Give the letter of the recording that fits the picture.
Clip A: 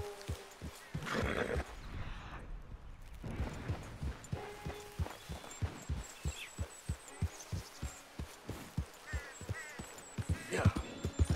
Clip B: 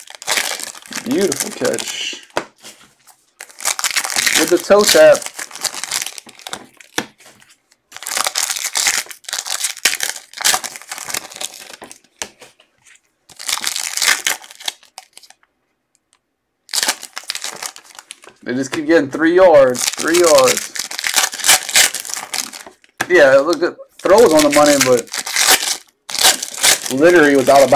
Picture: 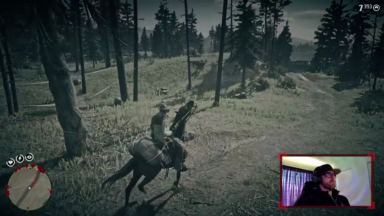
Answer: A